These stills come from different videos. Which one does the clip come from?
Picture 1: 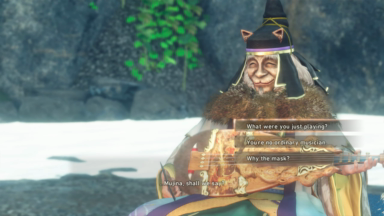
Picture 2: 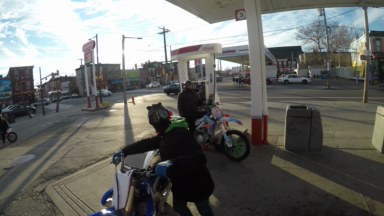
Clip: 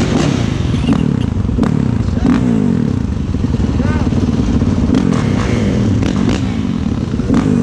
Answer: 2